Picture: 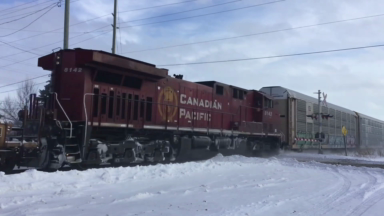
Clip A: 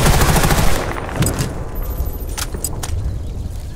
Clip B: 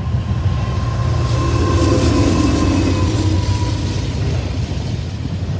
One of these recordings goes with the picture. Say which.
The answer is B